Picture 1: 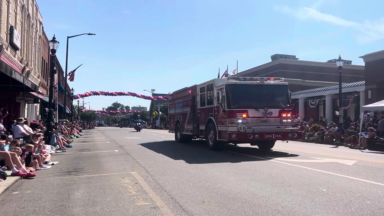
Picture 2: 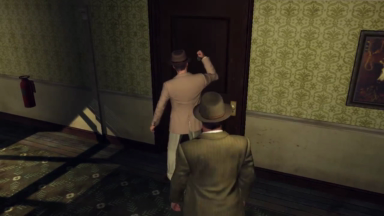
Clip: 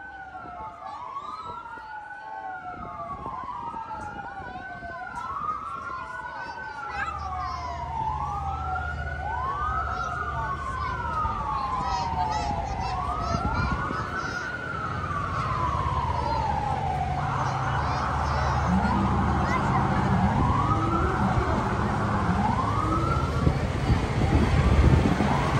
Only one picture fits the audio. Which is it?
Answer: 1